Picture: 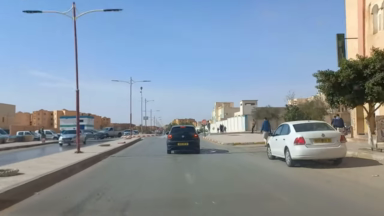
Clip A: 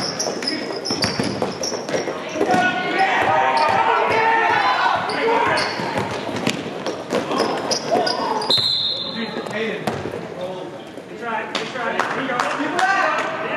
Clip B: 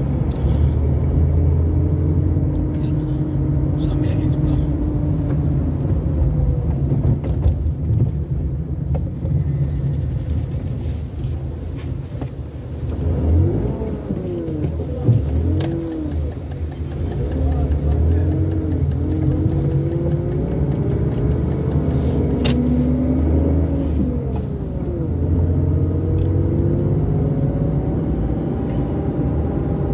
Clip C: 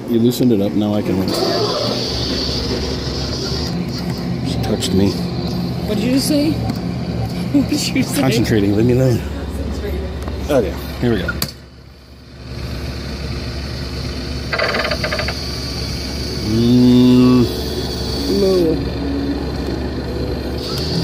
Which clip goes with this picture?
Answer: B